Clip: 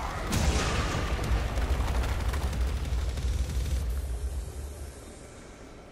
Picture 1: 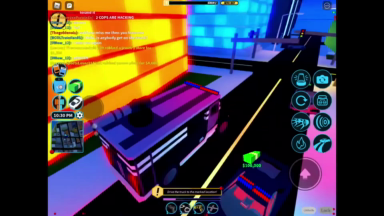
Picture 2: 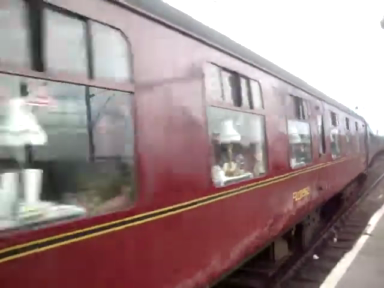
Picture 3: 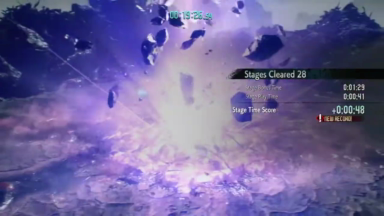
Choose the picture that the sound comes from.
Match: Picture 3